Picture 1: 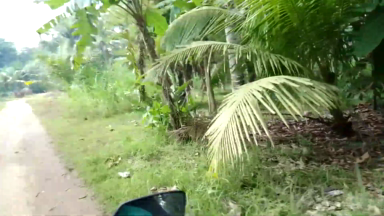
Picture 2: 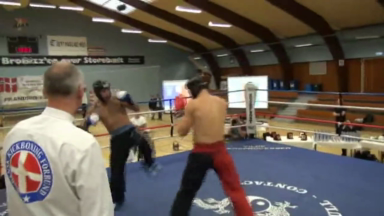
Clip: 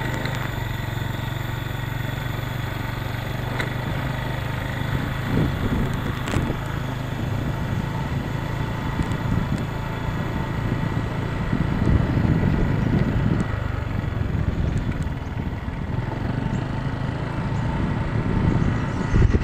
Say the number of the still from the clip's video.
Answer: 1